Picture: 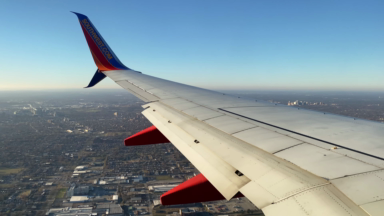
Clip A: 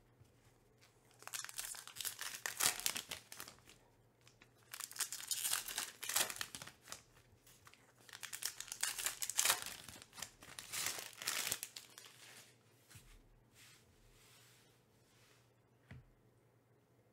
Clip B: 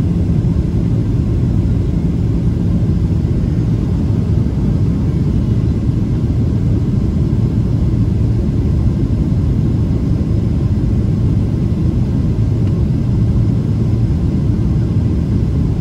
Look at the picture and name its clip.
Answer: B